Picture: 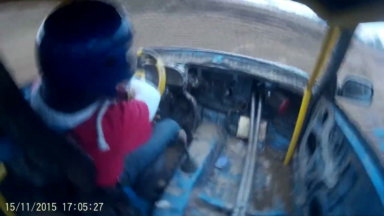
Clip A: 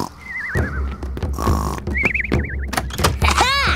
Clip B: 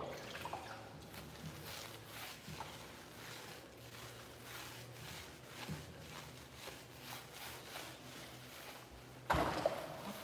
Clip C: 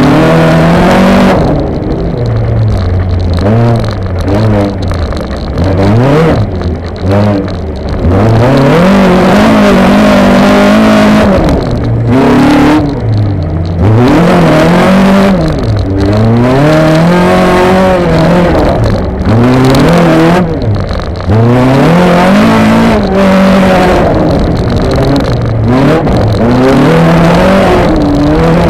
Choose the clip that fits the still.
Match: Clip C